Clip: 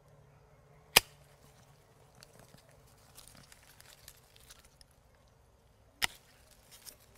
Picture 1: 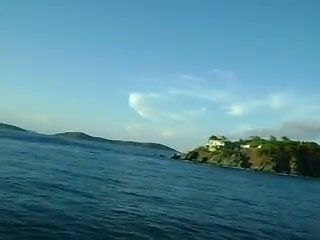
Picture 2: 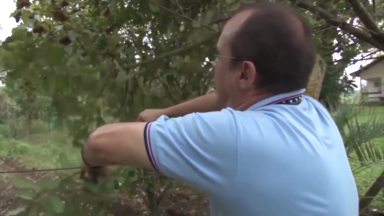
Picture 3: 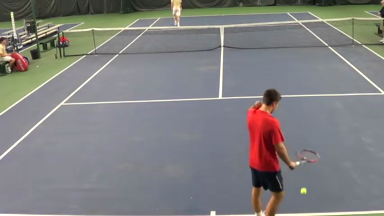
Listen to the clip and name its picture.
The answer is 2